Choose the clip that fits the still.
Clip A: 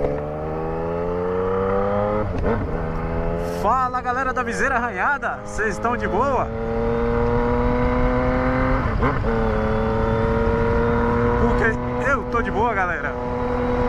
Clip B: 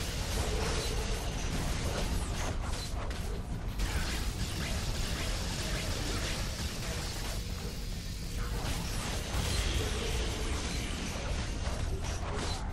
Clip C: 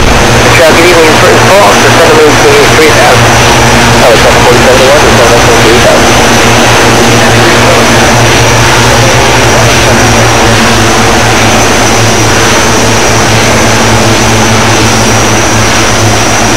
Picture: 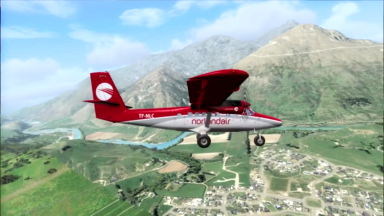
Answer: C